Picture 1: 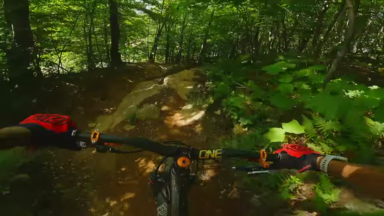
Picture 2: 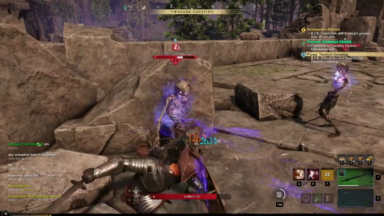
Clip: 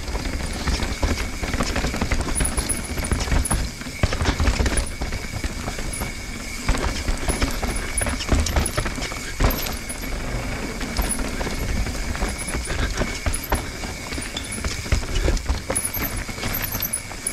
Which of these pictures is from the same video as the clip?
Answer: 1